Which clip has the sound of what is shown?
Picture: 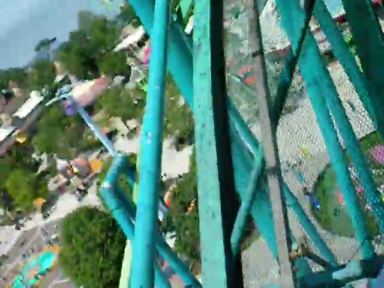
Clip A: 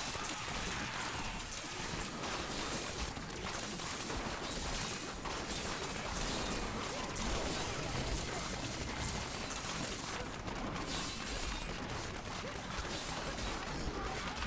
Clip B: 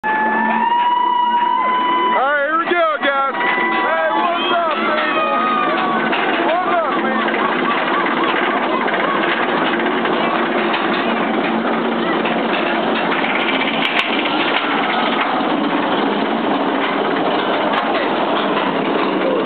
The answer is B